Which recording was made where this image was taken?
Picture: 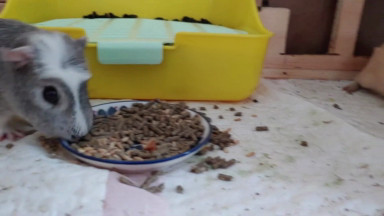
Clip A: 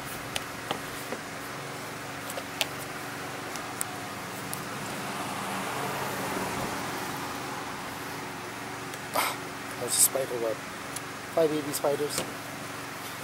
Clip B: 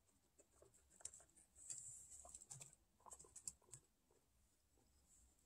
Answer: B